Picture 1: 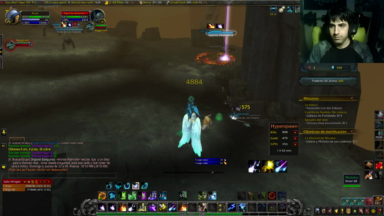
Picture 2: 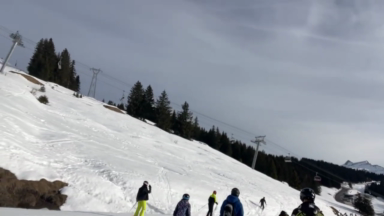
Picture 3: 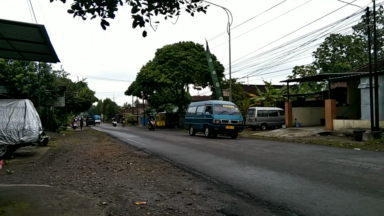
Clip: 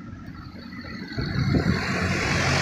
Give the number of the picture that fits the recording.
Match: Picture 3